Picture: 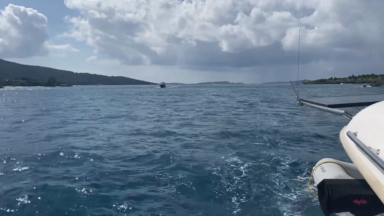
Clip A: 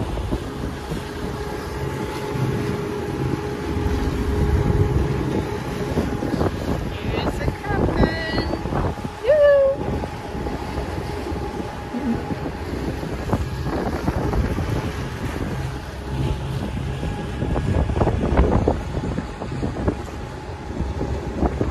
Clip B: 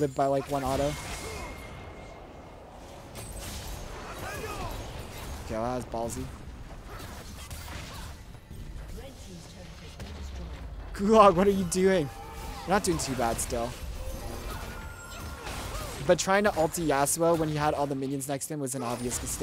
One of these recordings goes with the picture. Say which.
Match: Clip A